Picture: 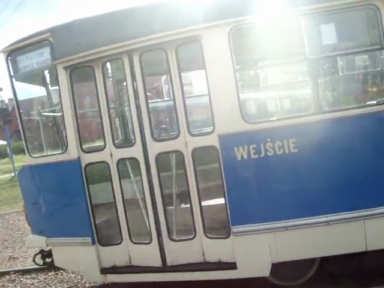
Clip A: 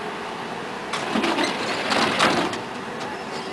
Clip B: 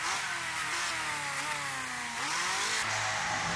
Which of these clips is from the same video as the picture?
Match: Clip A